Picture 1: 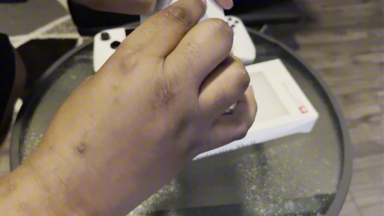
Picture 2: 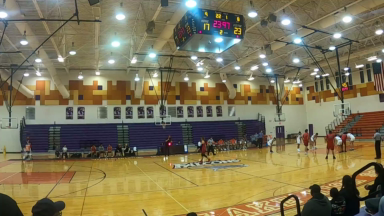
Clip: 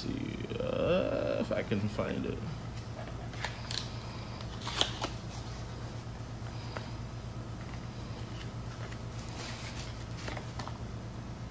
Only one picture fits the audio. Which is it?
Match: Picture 1